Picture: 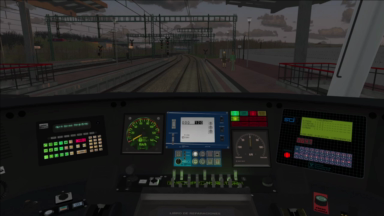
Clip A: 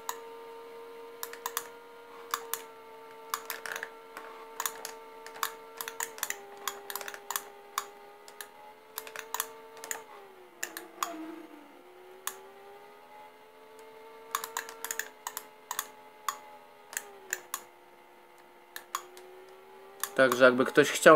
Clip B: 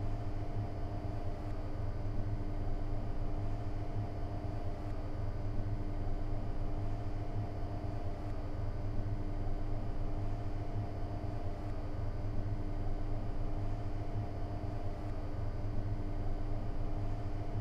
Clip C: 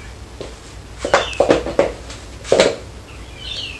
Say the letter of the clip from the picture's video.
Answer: B